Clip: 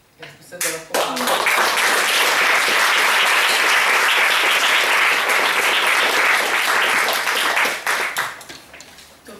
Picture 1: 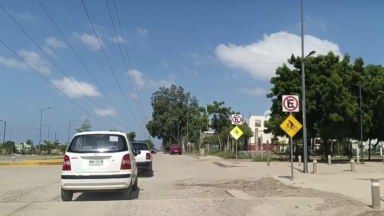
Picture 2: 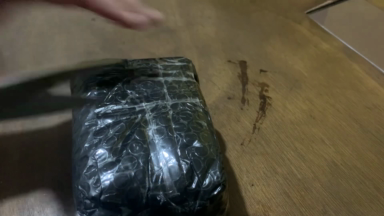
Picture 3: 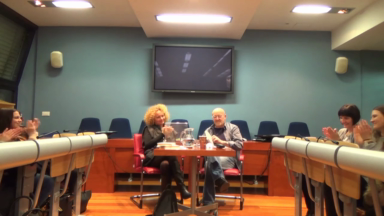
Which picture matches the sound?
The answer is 3